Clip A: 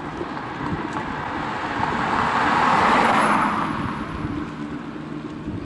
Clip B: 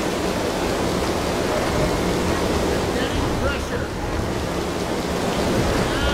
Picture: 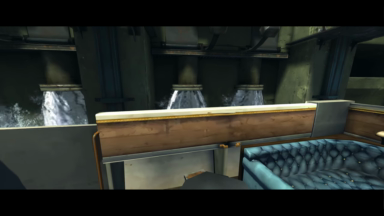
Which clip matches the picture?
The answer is B